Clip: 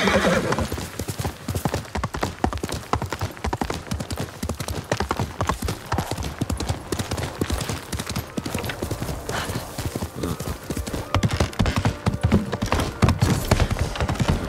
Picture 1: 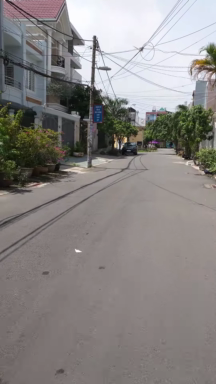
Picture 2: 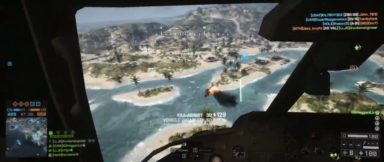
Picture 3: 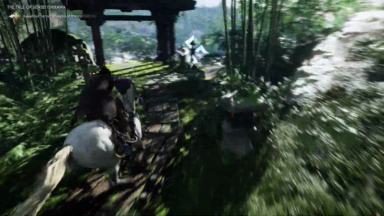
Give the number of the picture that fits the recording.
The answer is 3